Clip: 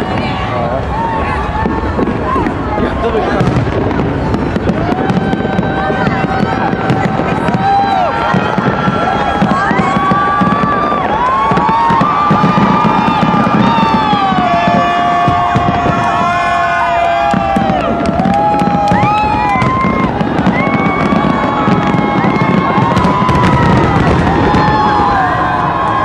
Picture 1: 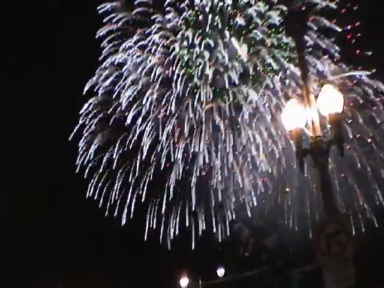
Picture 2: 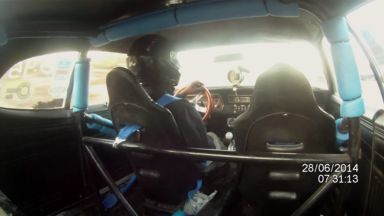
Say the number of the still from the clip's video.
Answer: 1